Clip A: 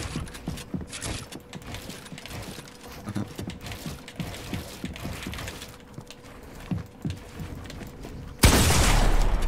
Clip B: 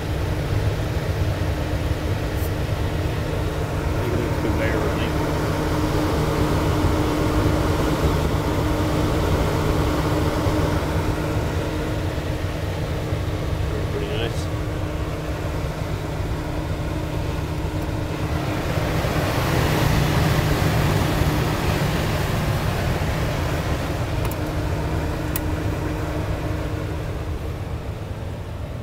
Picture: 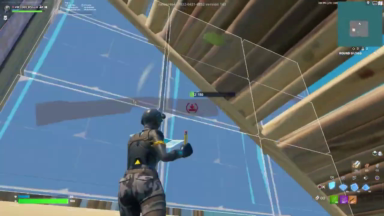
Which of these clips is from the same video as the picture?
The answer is A